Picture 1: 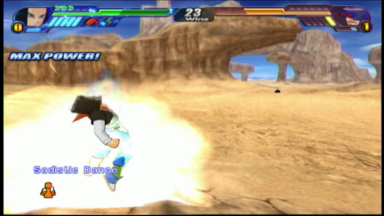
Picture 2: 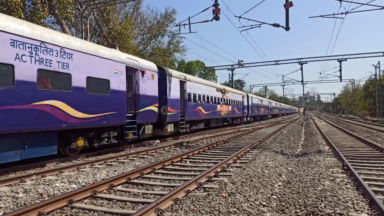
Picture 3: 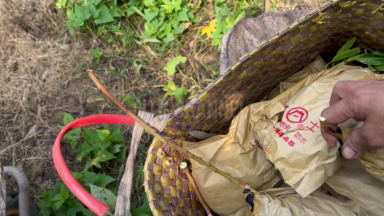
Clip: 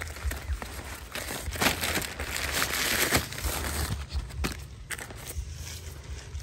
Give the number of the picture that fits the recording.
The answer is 3